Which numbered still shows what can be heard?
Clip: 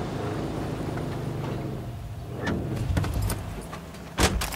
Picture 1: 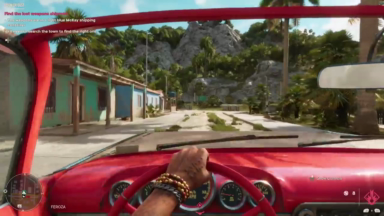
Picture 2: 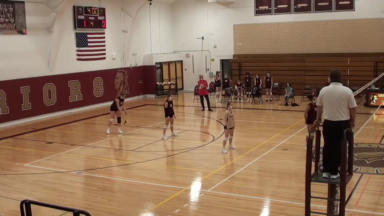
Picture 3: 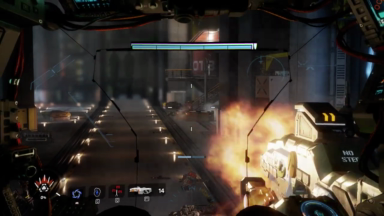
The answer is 1